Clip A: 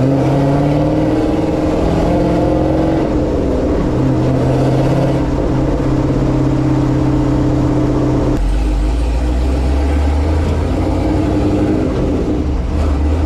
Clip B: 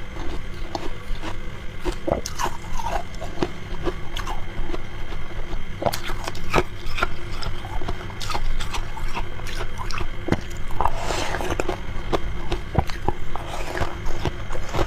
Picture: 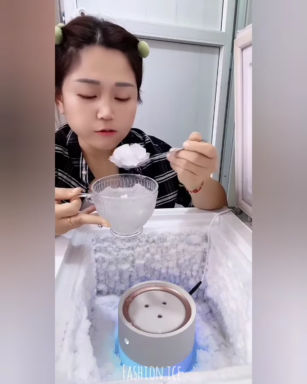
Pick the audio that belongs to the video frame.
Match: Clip B